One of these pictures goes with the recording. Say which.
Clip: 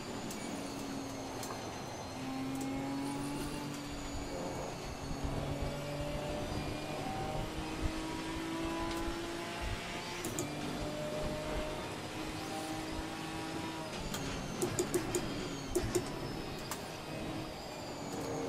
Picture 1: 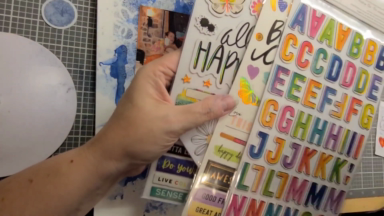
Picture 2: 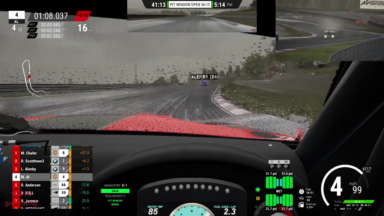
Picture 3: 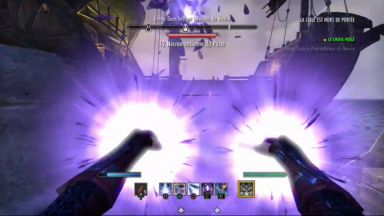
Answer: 2